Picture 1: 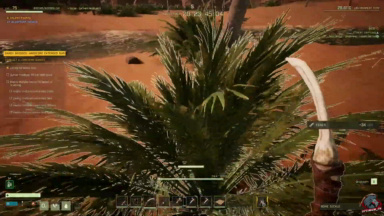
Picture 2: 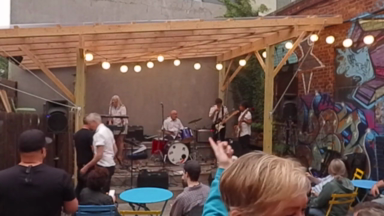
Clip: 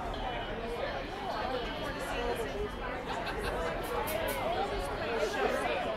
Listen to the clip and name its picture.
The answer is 2